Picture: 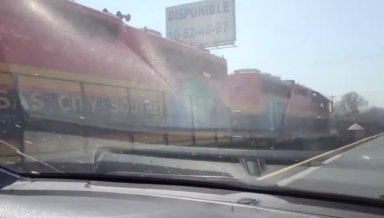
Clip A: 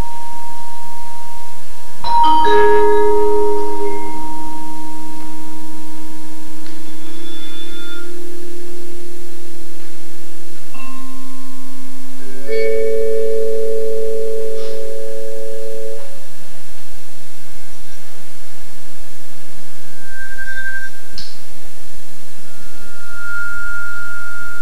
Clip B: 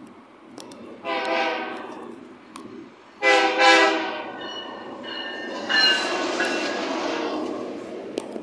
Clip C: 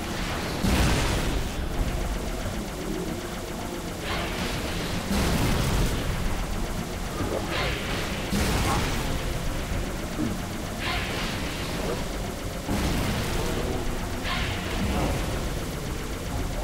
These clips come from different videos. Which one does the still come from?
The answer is B